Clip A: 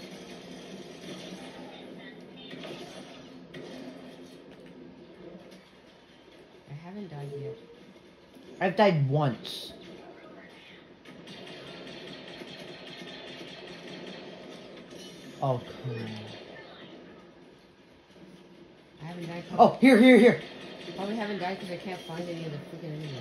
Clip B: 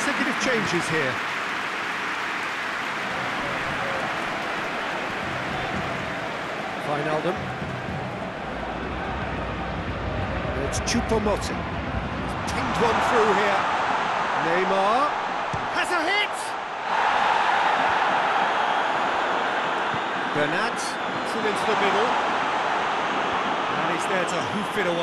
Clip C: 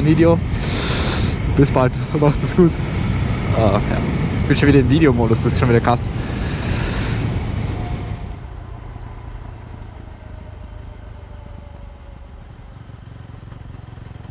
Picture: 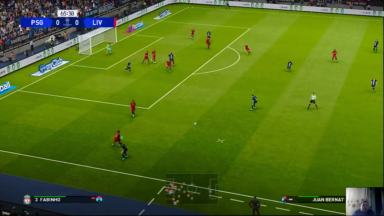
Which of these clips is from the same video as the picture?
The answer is B